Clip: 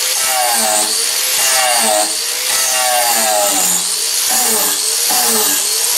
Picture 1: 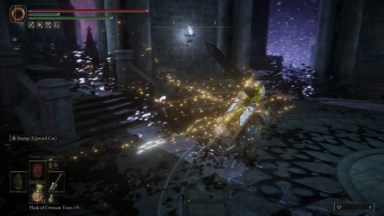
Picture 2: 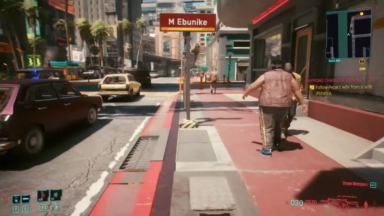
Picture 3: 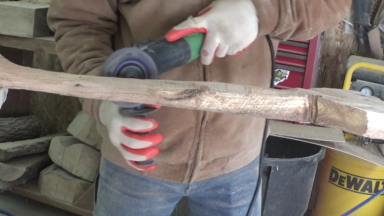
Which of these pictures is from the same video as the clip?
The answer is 3